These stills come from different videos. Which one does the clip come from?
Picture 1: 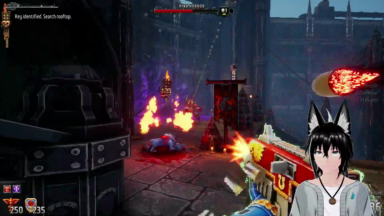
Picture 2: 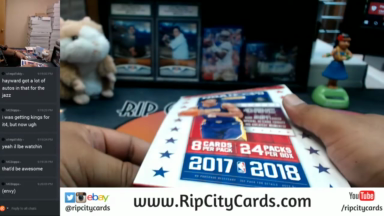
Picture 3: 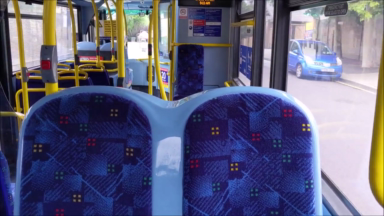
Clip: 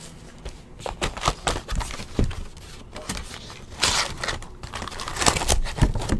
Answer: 2